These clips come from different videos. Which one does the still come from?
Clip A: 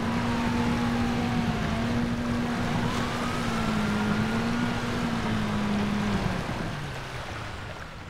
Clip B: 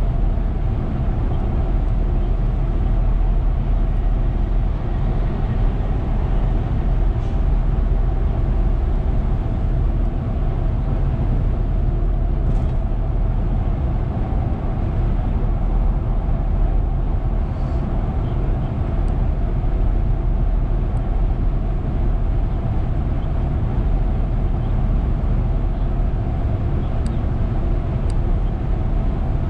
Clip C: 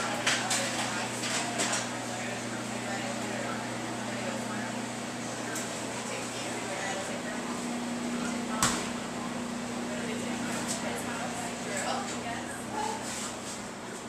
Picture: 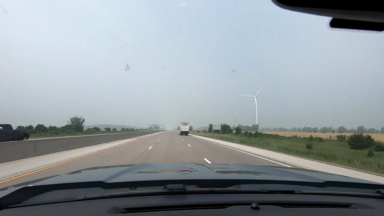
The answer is B